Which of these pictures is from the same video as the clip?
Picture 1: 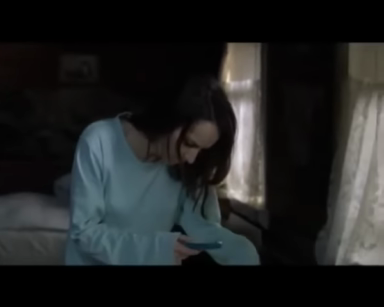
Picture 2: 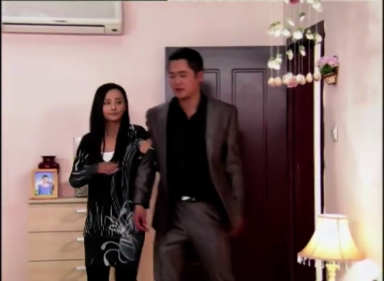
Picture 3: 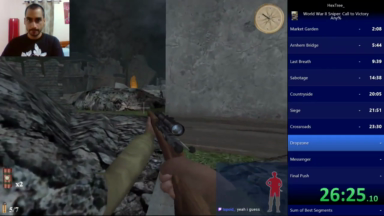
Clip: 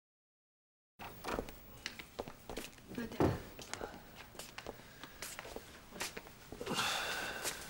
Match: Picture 2